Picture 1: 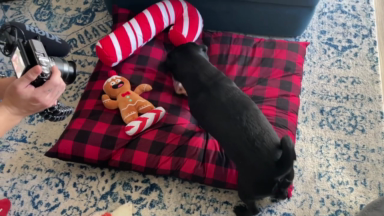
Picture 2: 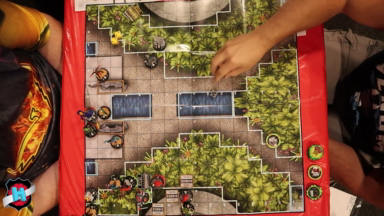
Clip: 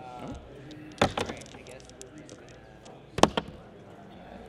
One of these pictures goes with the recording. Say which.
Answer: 2